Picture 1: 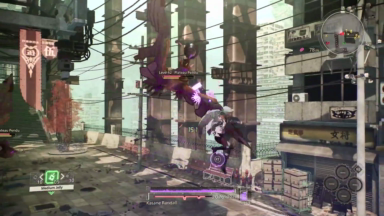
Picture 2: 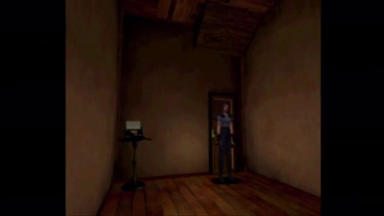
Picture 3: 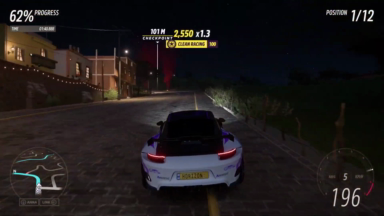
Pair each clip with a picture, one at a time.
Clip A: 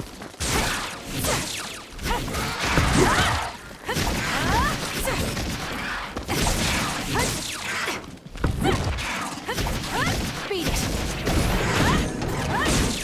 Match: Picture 1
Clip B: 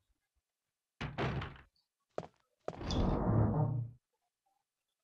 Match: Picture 2